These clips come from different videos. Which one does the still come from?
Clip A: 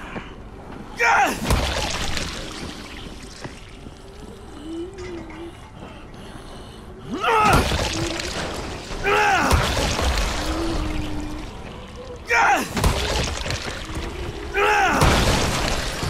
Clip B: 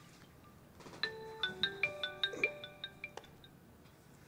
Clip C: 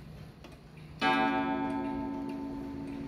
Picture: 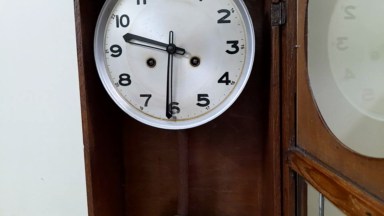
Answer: C